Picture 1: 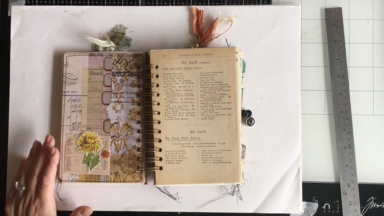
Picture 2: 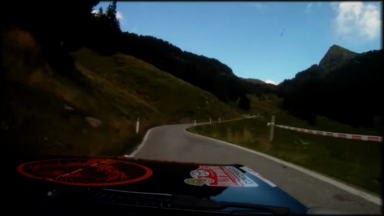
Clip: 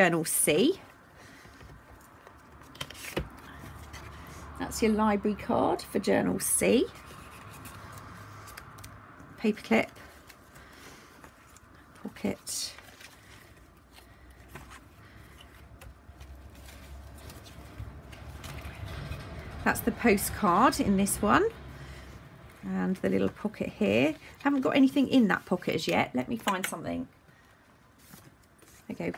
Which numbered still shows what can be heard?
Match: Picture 1